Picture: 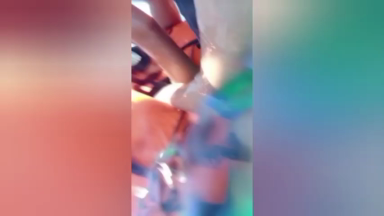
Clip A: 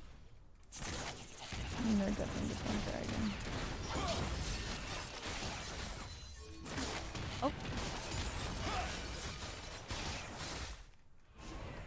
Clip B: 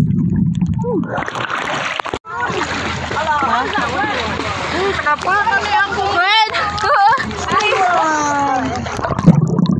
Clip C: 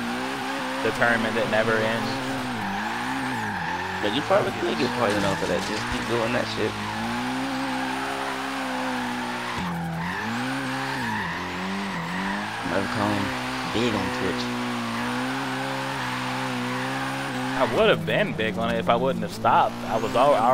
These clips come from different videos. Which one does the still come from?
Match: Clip B